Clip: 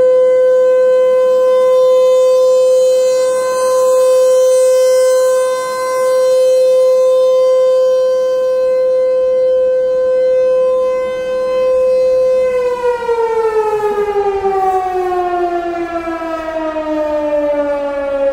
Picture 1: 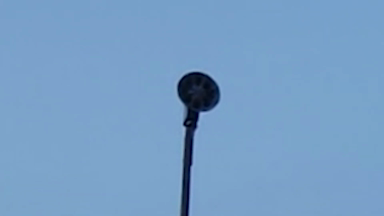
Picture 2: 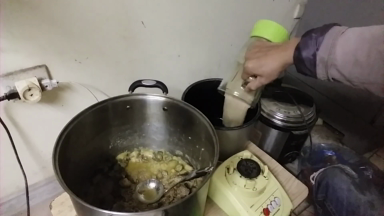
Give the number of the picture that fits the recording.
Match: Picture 1